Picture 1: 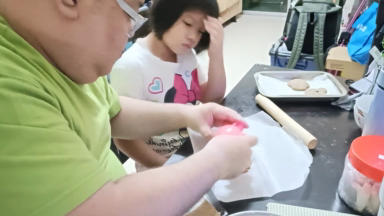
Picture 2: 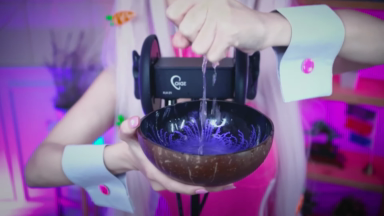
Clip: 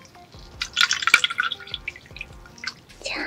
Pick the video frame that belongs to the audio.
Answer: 2